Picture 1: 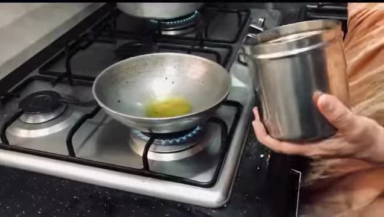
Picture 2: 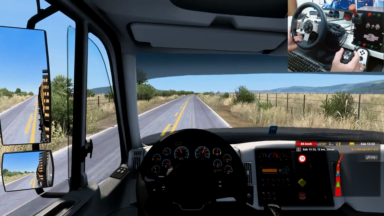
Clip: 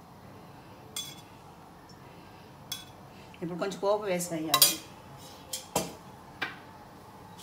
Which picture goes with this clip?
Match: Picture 1